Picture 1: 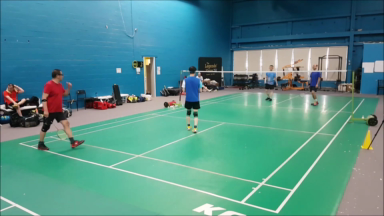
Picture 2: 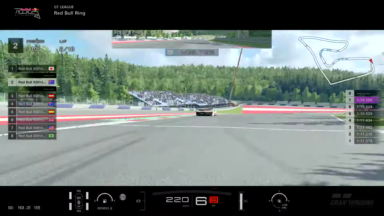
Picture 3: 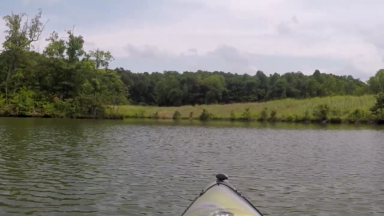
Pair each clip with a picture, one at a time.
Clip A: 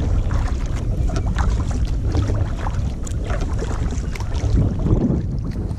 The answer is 3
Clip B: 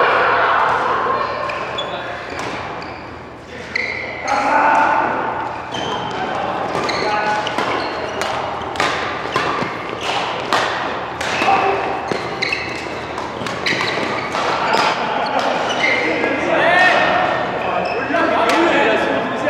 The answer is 1